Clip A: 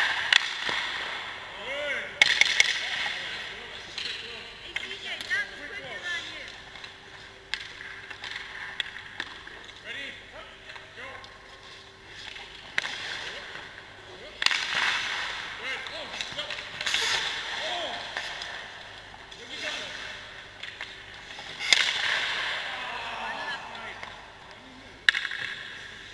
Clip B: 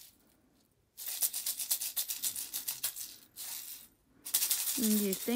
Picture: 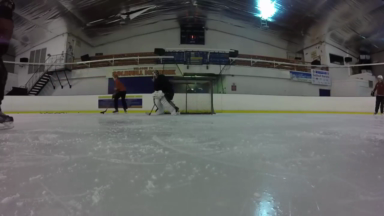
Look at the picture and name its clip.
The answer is A